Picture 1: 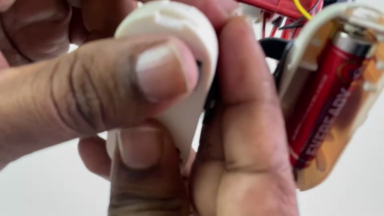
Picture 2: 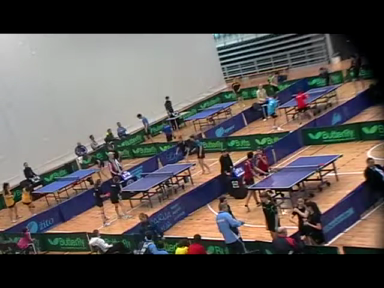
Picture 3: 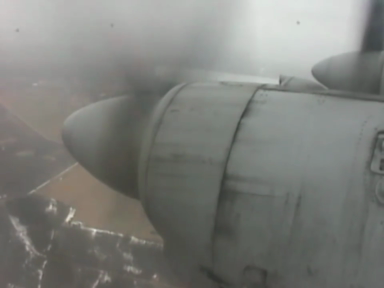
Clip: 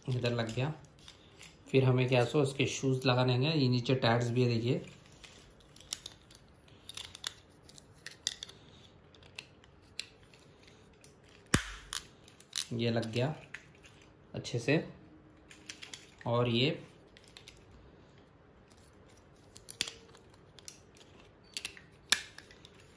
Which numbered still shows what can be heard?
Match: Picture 1